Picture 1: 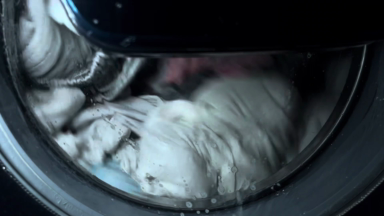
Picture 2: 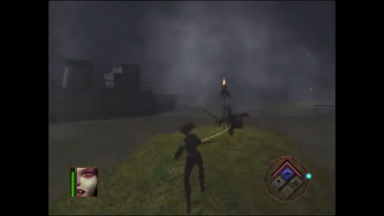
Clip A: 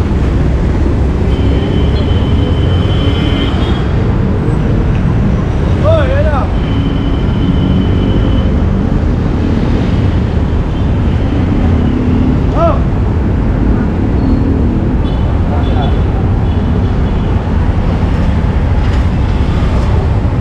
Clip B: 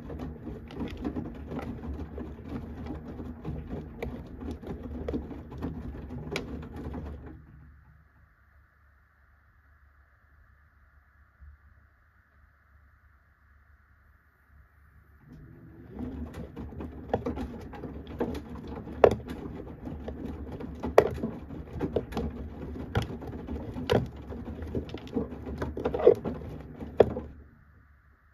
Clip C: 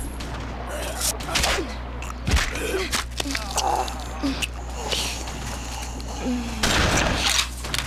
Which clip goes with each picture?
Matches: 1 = B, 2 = C